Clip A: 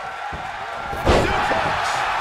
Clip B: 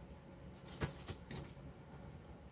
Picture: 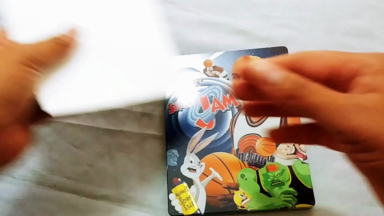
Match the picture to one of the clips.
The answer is B